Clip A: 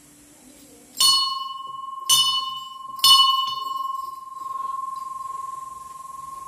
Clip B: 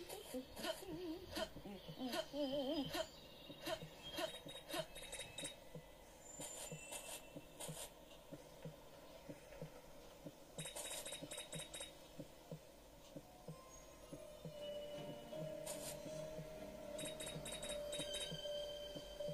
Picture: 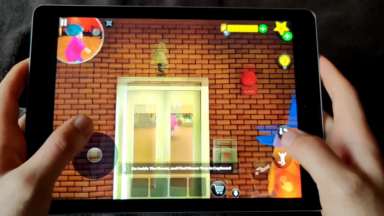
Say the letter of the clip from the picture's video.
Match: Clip B